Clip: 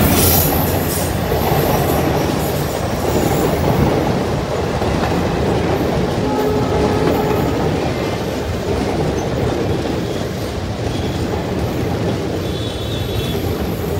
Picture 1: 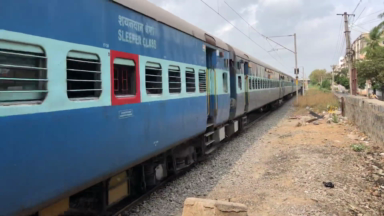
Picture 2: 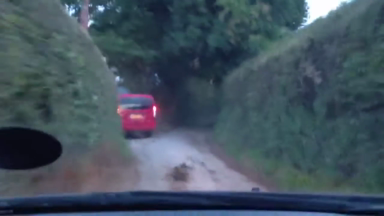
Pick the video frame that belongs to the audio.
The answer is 1